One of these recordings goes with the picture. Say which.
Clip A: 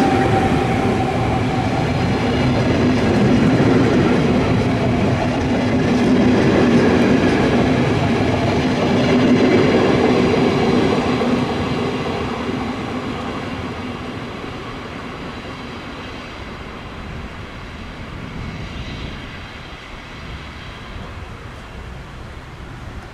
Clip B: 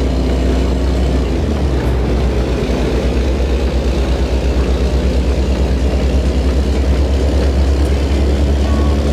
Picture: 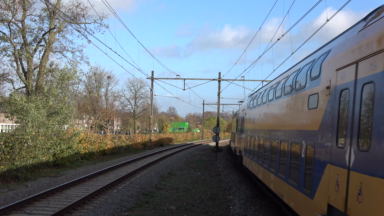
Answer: A